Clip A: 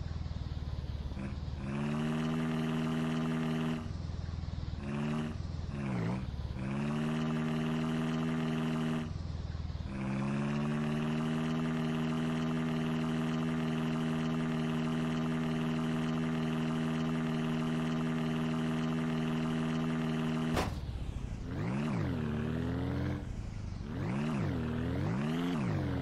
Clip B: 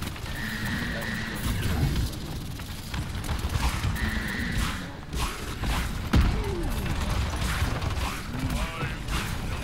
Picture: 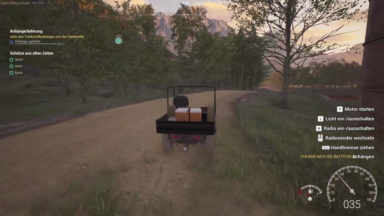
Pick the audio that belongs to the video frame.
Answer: A